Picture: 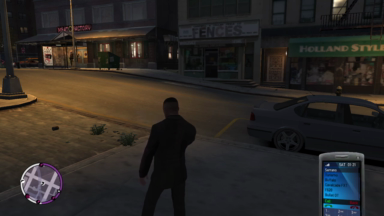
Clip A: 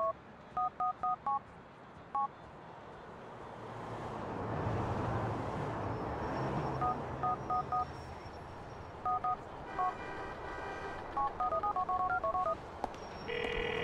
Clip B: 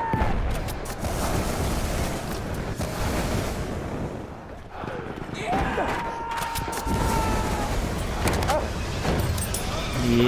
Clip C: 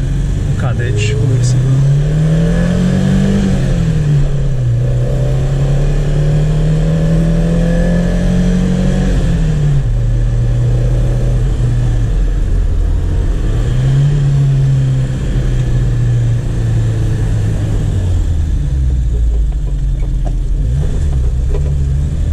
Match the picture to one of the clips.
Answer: A